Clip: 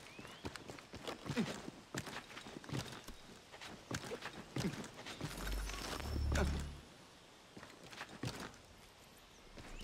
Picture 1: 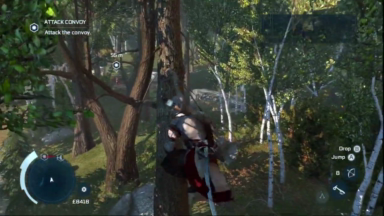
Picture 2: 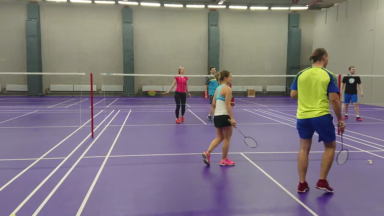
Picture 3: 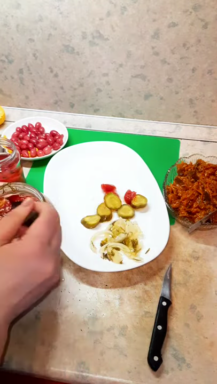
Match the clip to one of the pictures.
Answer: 1